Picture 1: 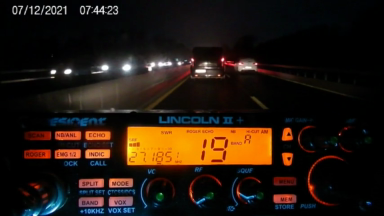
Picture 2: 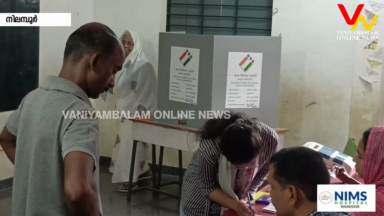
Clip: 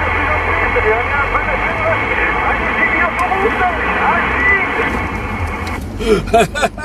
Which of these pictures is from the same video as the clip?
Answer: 1